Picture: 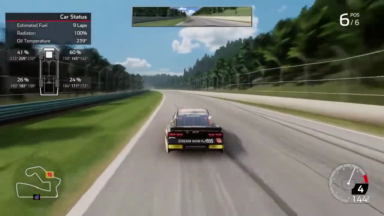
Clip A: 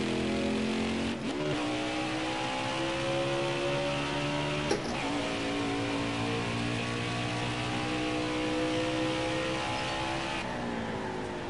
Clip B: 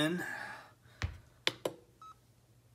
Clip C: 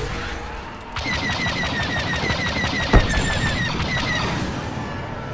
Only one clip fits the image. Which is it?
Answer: A